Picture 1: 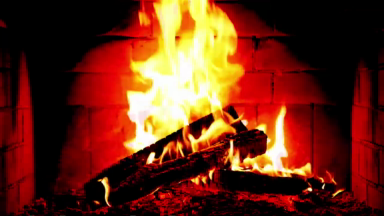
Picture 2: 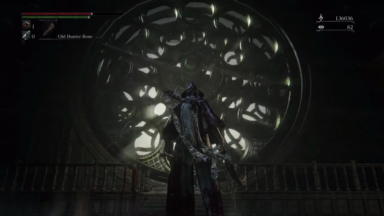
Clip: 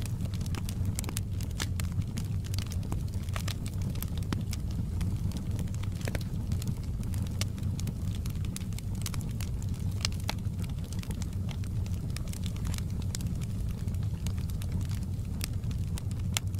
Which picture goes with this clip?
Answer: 1